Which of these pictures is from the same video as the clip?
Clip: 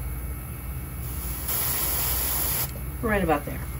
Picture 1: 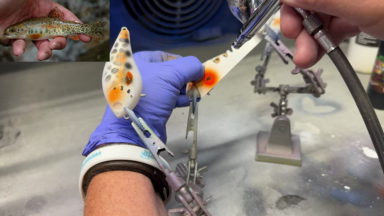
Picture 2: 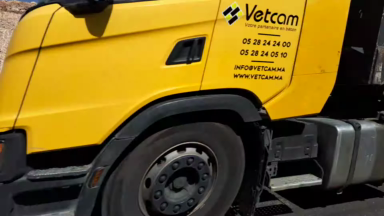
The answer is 1